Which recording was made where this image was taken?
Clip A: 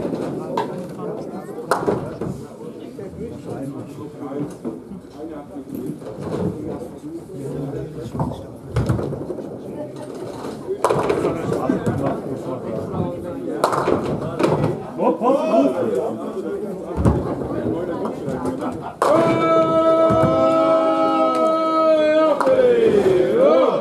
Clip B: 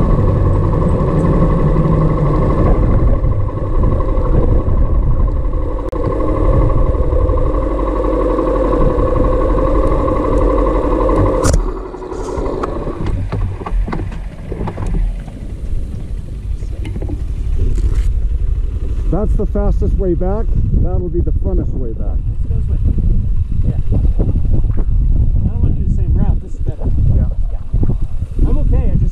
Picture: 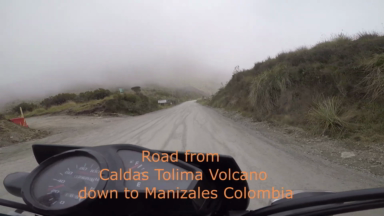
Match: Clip B